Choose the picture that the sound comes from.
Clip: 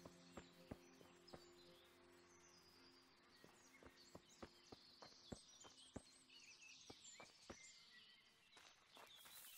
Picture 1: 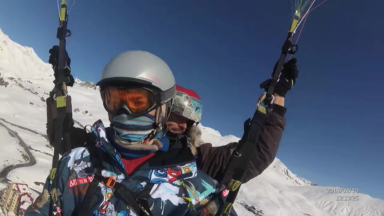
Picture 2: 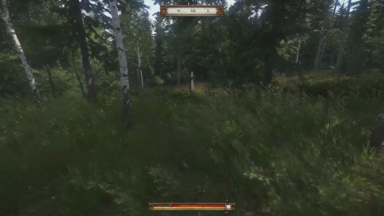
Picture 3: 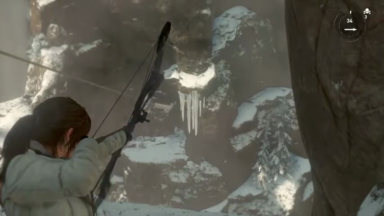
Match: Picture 2